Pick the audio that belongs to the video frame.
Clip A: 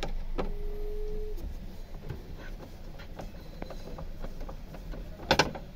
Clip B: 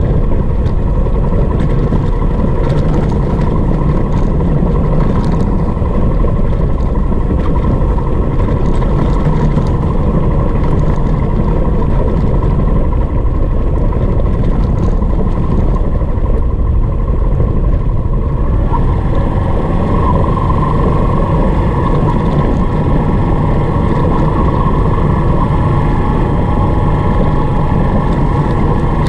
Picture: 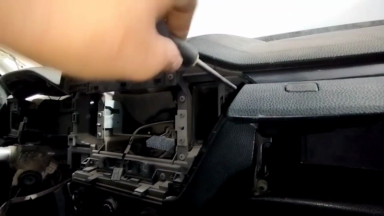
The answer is A